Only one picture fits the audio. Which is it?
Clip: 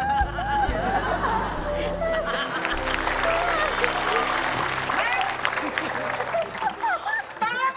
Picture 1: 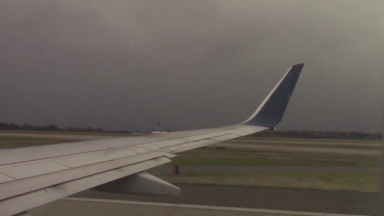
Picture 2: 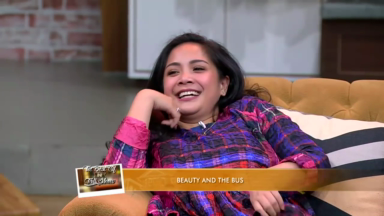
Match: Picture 2